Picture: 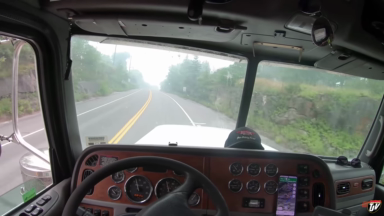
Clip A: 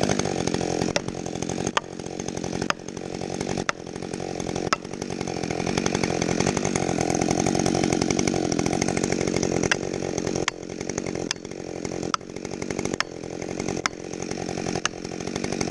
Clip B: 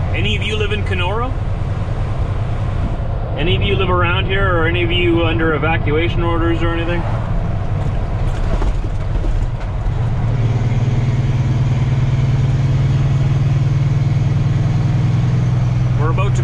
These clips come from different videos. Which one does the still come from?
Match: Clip B